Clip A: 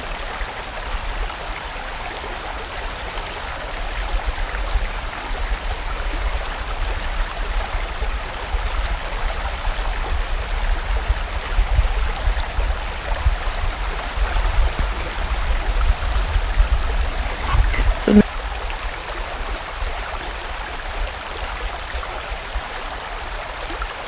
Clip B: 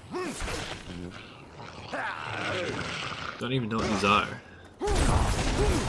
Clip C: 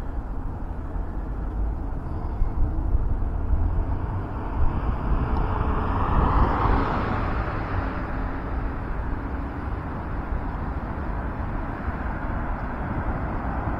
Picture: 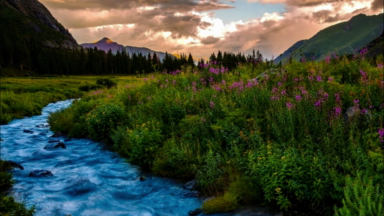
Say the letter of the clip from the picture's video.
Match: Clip A